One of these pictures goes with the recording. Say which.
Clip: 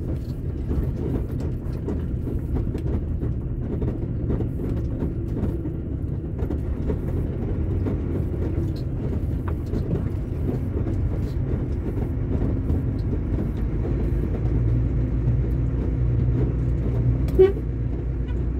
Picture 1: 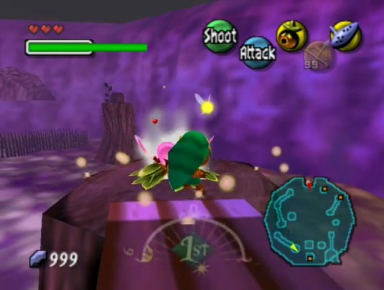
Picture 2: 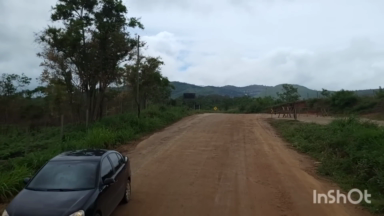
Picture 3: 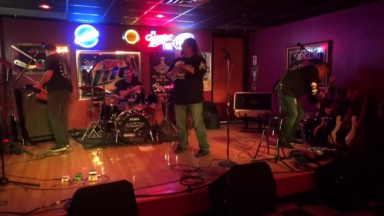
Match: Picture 2